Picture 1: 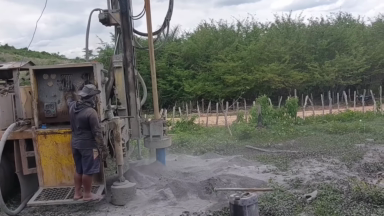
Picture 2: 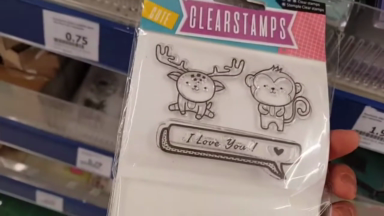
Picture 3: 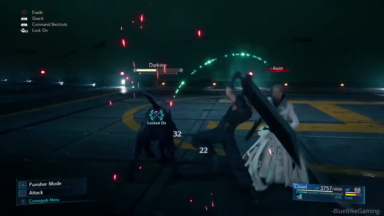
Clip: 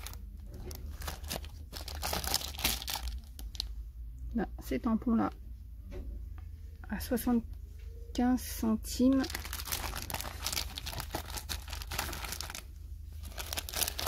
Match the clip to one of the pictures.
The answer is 2